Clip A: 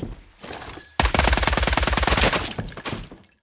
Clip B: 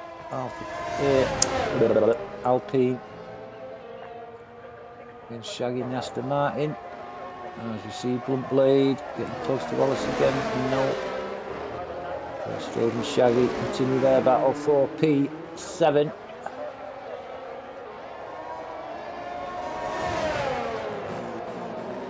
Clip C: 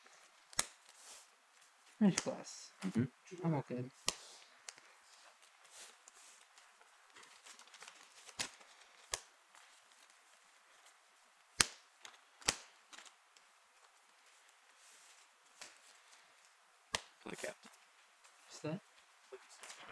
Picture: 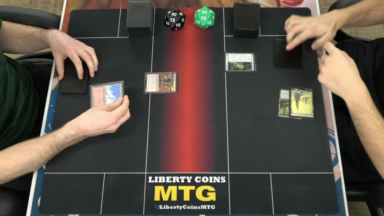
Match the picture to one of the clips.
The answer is C